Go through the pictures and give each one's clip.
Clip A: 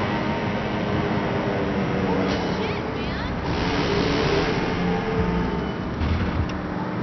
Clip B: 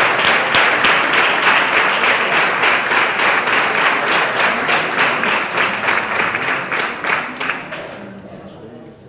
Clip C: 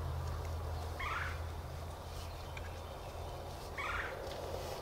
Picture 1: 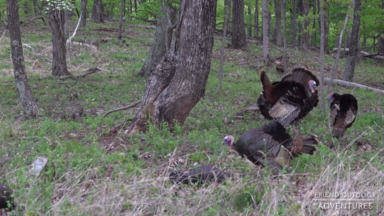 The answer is C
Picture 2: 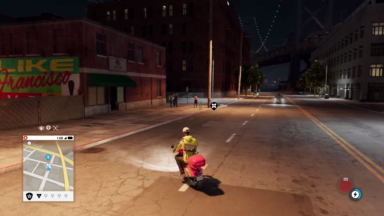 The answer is A